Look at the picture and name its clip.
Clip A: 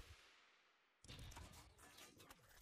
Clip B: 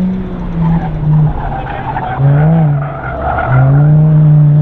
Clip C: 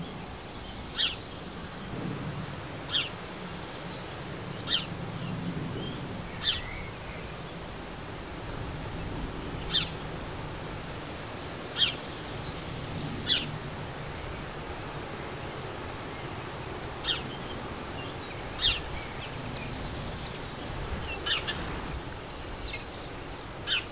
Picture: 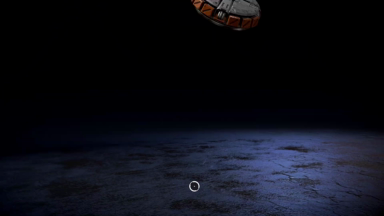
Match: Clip A